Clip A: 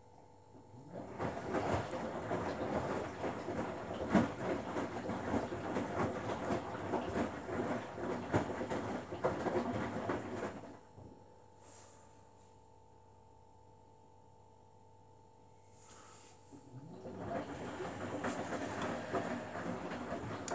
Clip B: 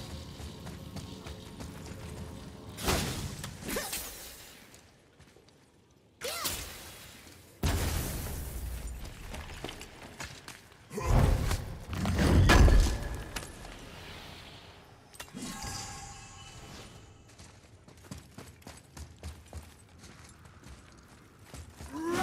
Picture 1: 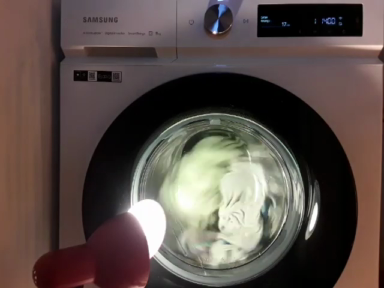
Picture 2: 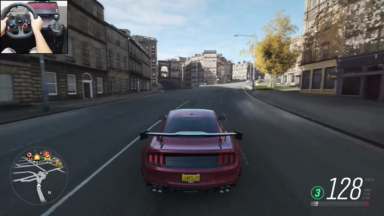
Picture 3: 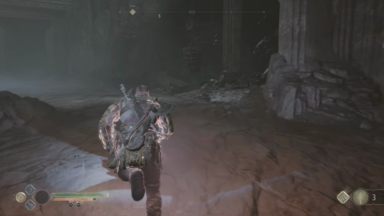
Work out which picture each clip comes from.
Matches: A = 1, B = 3